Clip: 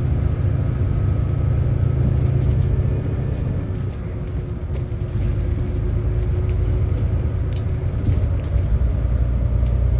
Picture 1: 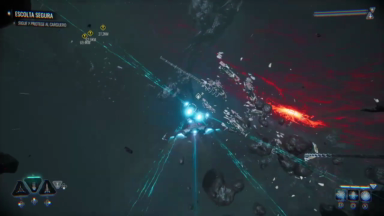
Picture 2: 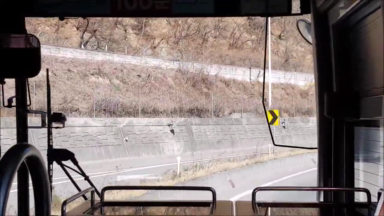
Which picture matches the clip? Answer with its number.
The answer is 2